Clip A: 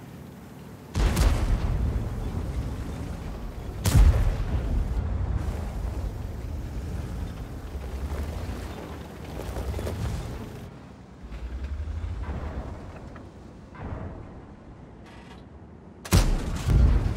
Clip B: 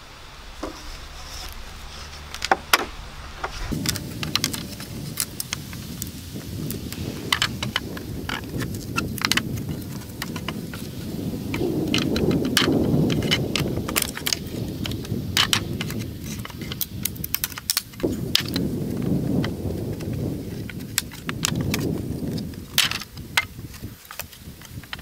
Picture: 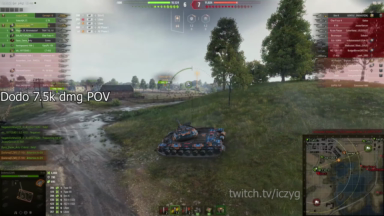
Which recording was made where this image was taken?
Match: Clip A